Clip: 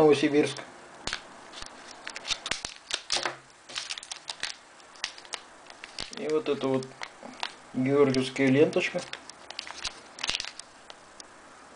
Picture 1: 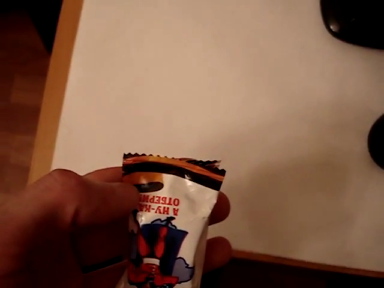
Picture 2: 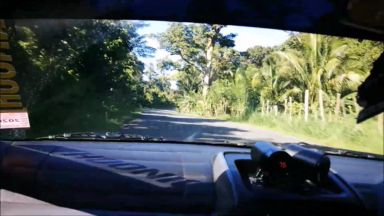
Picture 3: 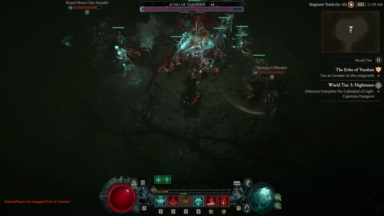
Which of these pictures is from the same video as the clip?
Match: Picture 1